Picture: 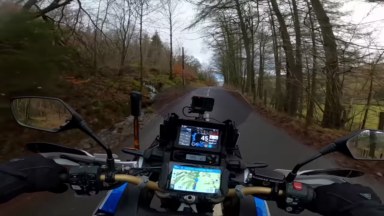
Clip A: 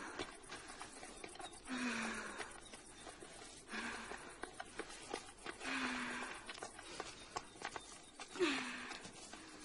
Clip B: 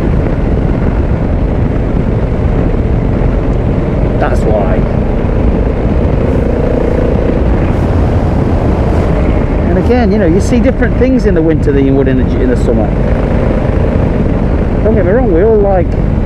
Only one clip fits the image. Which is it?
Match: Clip B